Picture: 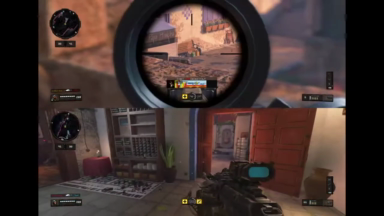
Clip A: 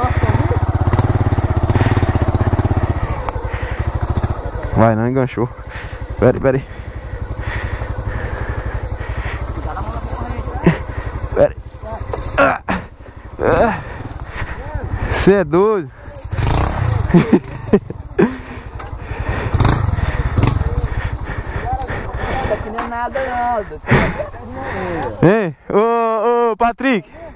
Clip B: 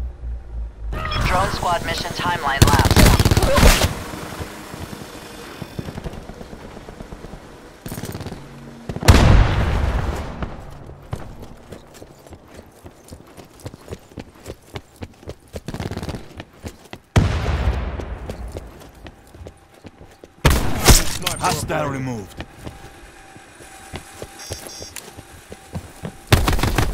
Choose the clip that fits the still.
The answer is B